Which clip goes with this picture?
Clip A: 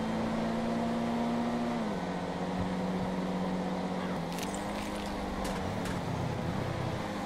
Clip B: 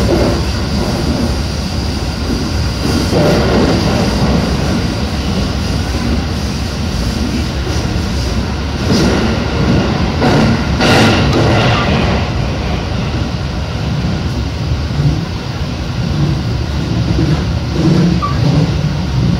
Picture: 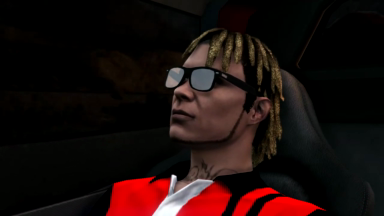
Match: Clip A